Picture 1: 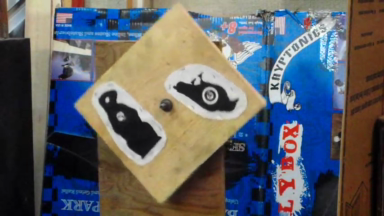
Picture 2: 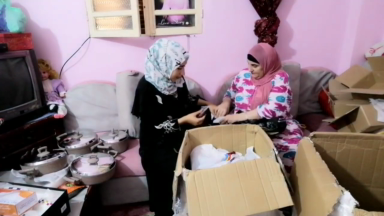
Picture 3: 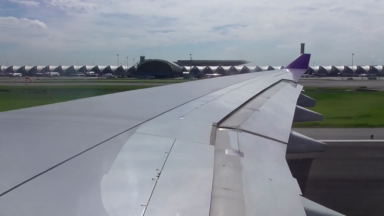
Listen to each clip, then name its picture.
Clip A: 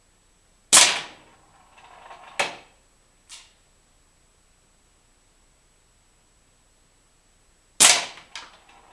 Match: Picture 1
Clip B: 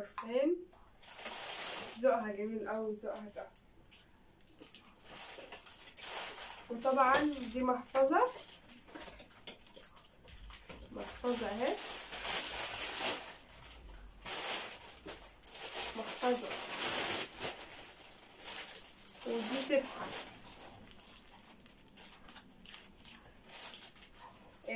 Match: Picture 2